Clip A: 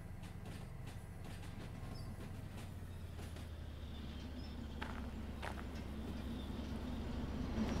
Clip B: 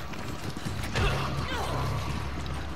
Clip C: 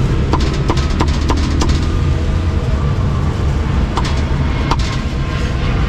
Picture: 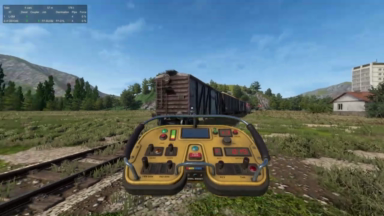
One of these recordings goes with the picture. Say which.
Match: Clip A